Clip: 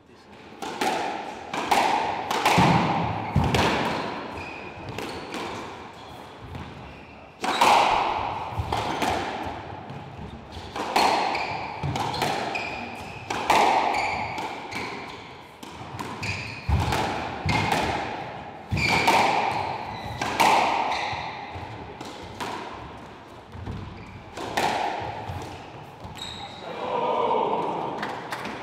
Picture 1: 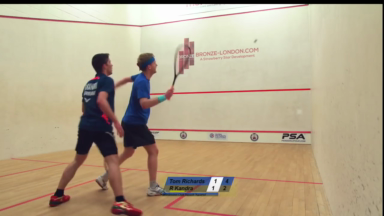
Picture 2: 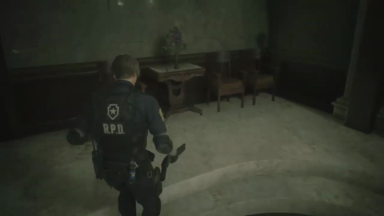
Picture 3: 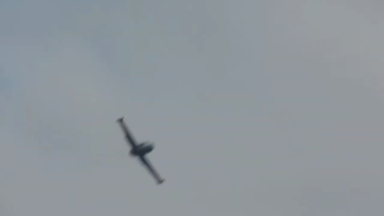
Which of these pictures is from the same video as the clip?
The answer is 1